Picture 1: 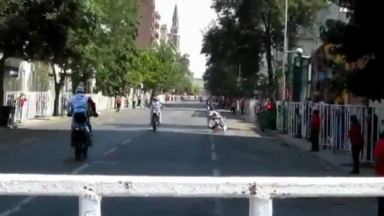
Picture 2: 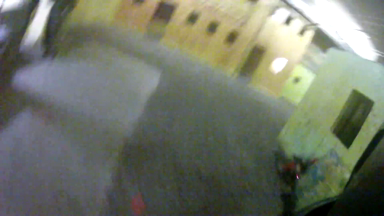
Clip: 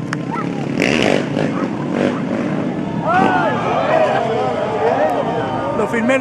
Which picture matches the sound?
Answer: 1